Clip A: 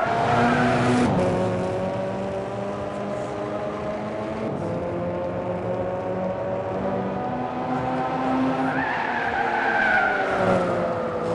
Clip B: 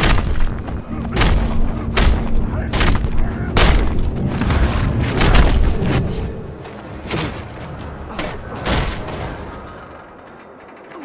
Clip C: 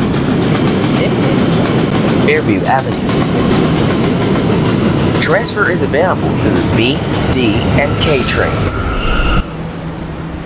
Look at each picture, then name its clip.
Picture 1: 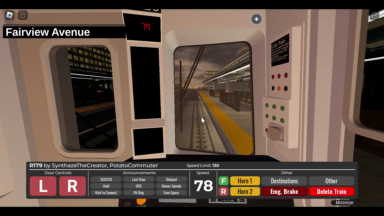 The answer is C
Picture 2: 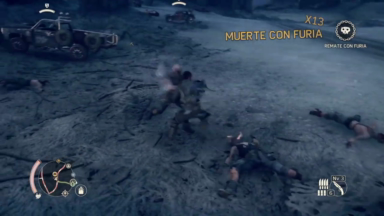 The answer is B